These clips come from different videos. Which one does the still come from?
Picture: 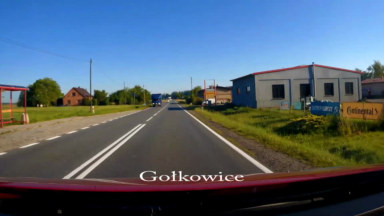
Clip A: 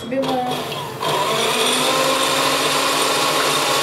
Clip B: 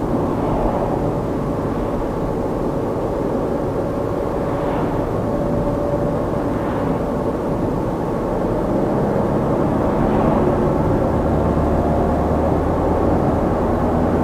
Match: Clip B